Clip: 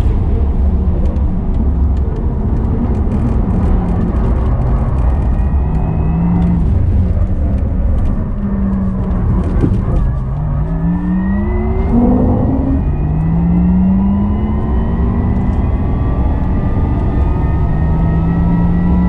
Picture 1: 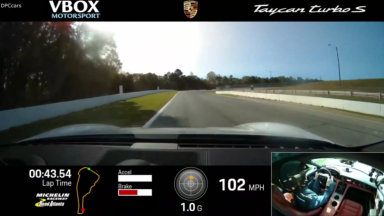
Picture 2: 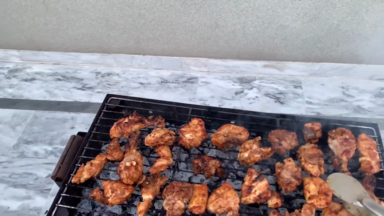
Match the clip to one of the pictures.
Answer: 1